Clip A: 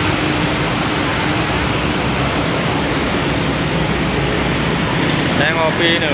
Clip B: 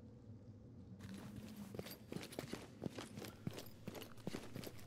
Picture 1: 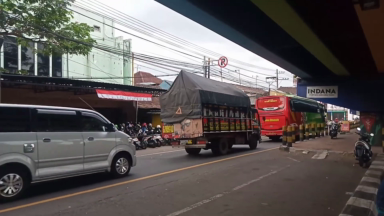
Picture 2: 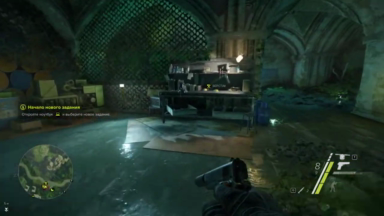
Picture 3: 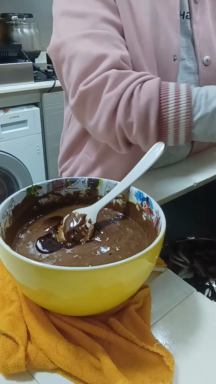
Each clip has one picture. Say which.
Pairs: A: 1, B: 2